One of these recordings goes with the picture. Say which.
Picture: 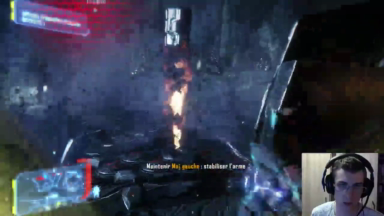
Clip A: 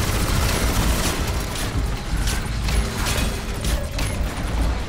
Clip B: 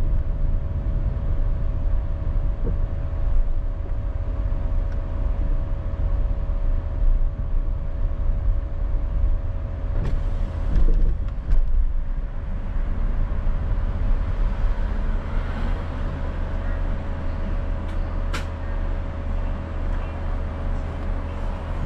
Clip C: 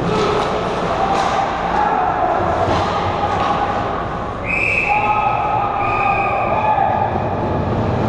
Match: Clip A